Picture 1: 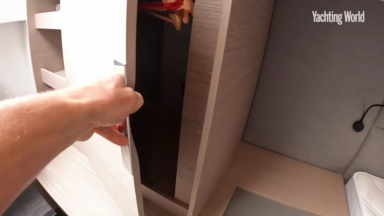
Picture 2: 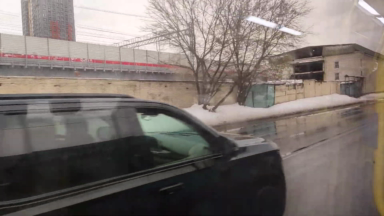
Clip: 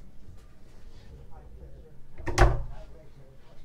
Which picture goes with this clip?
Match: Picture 1